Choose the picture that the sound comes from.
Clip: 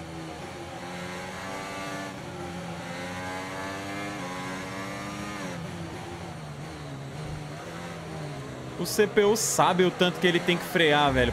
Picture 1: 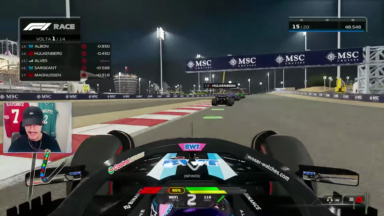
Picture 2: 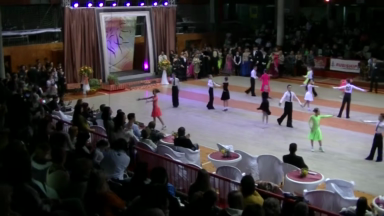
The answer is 1